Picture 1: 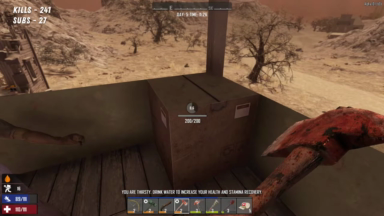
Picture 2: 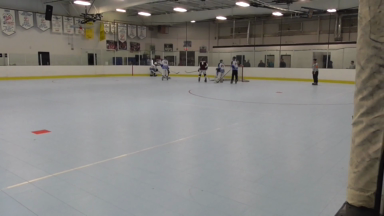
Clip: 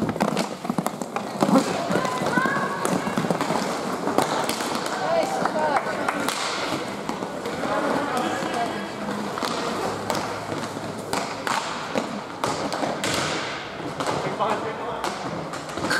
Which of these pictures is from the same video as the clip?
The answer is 2